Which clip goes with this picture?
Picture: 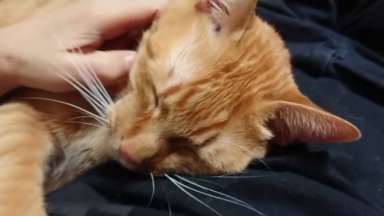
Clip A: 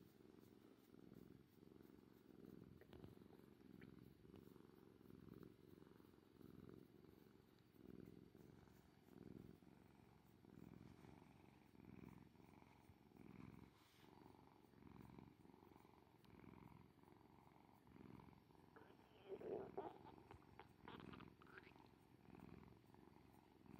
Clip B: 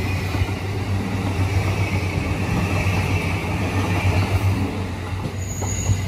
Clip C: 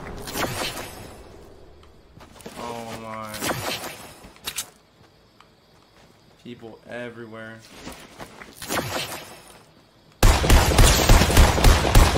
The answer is A